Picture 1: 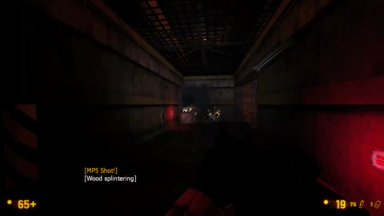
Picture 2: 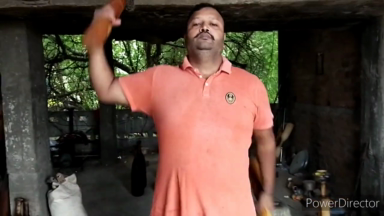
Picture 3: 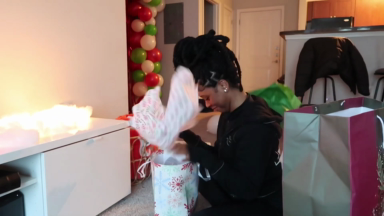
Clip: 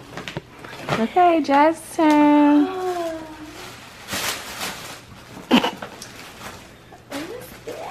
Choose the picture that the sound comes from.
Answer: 3